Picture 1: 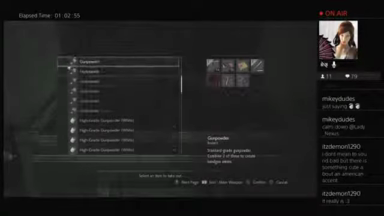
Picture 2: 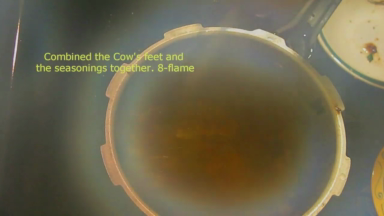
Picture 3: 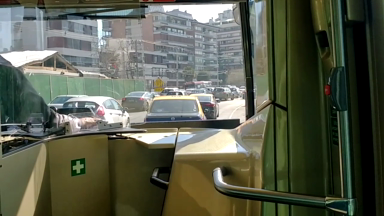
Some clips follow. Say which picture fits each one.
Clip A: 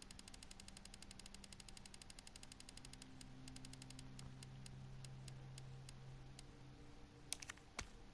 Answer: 1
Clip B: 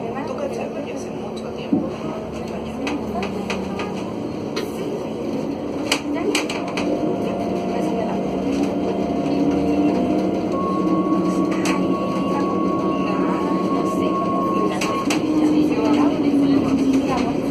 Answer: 3